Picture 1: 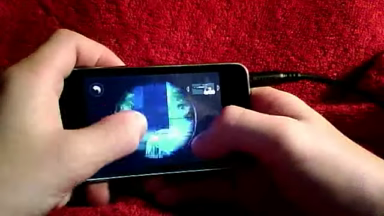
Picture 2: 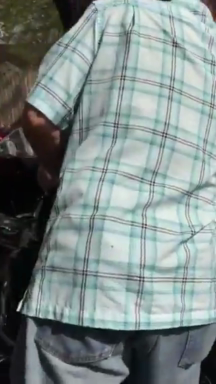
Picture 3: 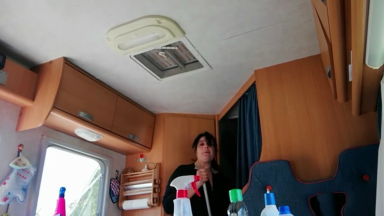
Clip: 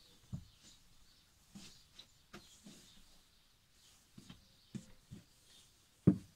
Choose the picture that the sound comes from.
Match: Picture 3